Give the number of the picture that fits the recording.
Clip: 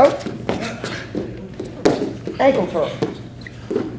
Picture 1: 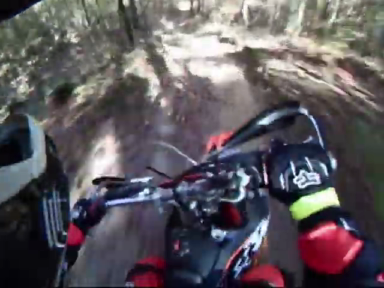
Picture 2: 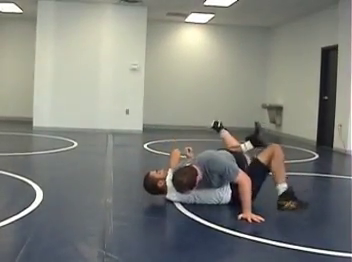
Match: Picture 2